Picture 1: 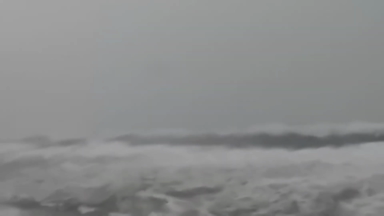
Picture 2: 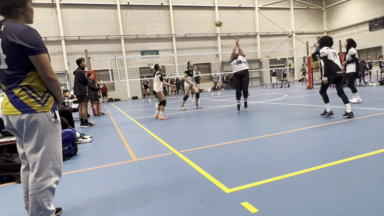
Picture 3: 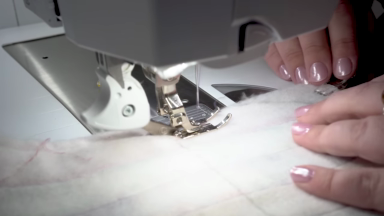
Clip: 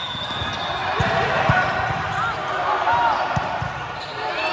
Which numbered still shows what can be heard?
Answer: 2